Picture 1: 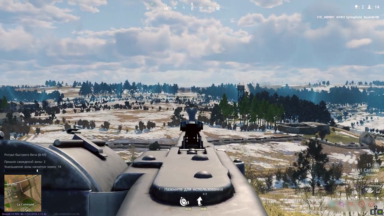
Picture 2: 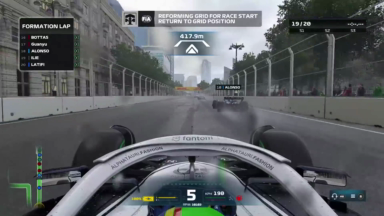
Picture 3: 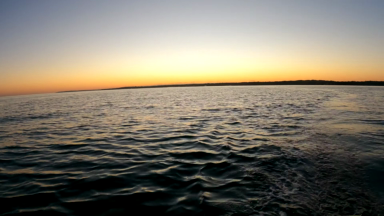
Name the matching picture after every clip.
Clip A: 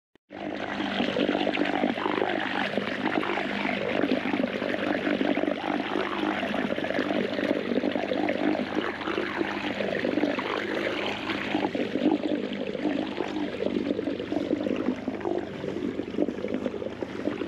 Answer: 3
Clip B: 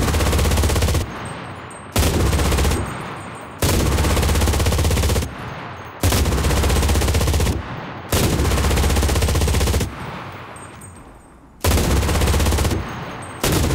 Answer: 1